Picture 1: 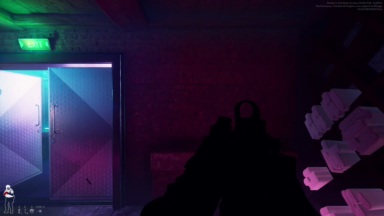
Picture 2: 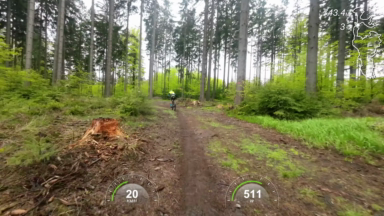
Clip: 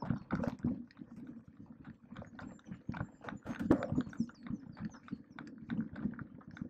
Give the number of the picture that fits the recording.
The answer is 2